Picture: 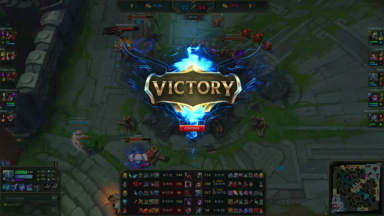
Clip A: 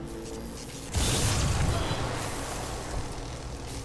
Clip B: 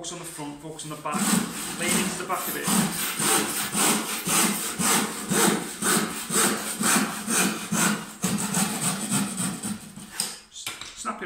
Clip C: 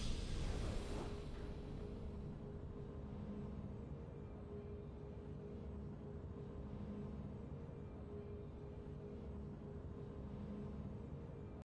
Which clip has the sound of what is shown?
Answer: C